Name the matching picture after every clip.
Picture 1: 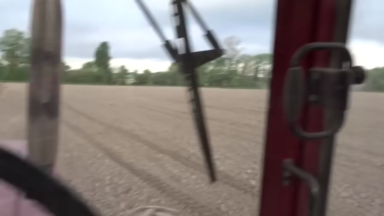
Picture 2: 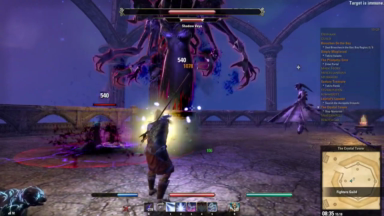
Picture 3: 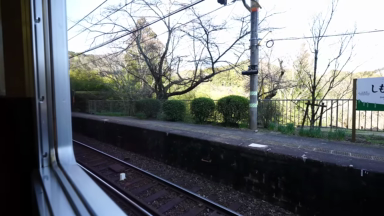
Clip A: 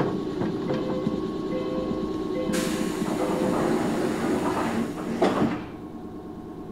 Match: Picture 3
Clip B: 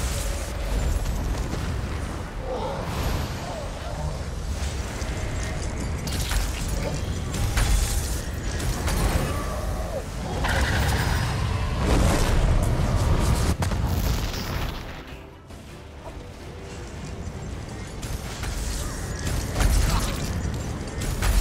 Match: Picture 2